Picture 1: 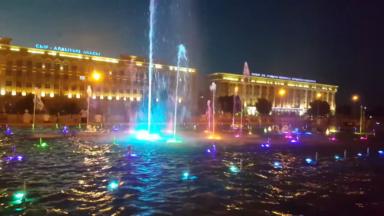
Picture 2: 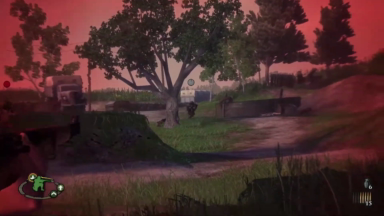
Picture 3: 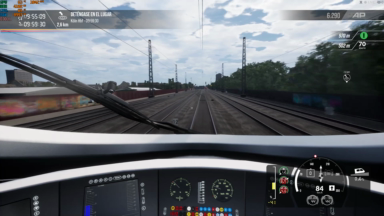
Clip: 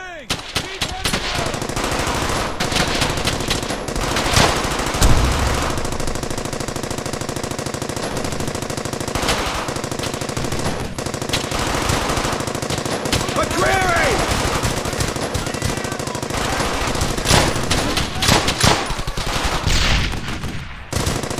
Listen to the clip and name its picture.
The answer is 2